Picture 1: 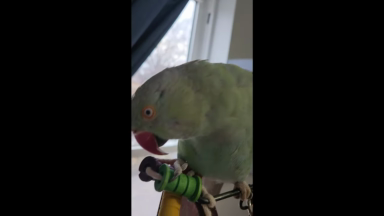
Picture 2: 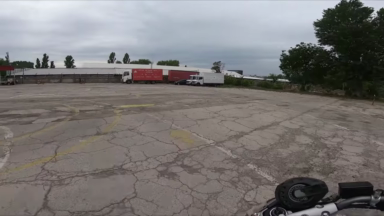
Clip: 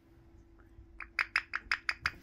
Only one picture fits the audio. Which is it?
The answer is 1